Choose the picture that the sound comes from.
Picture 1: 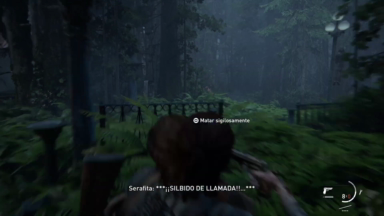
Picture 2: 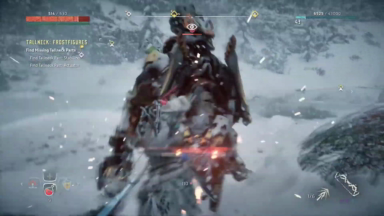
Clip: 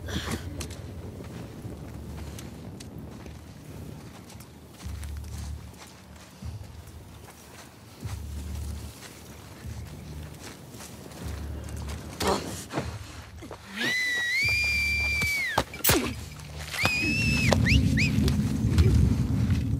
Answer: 1